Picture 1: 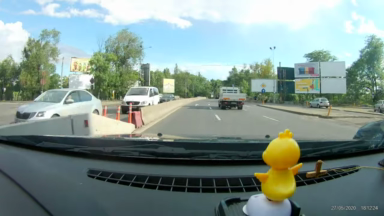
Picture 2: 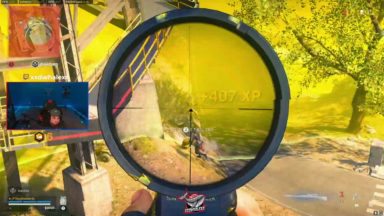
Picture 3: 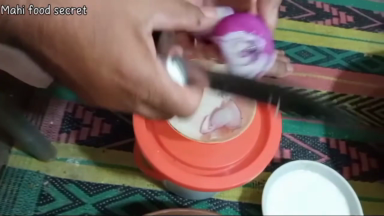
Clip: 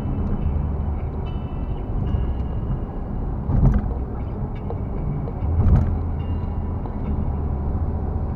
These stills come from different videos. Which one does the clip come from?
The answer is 1